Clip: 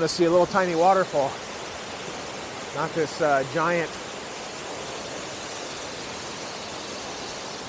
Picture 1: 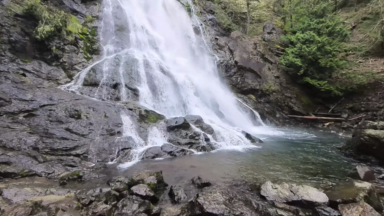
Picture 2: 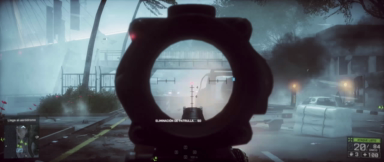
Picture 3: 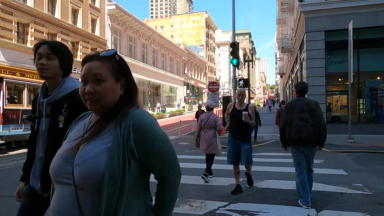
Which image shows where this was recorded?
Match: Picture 1